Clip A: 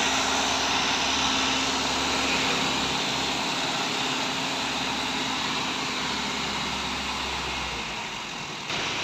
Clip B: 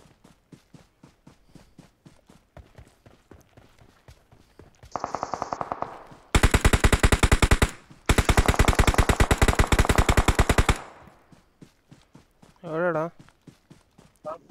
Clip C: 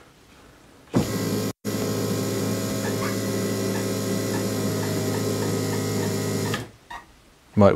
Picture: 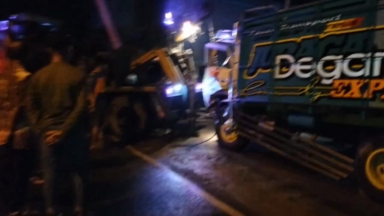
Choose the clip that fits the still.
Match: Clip A